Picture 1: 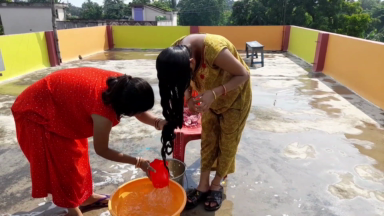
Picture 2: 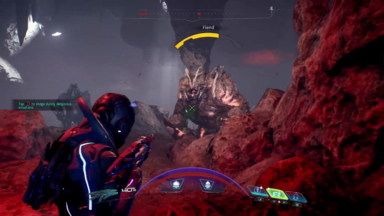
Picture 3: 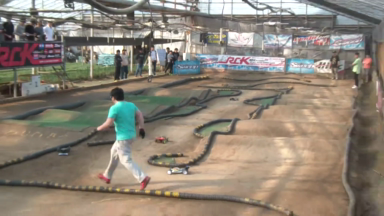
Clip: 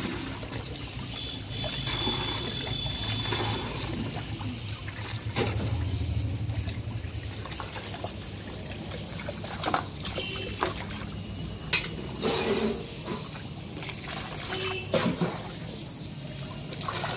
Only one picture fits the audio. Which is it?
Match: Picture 1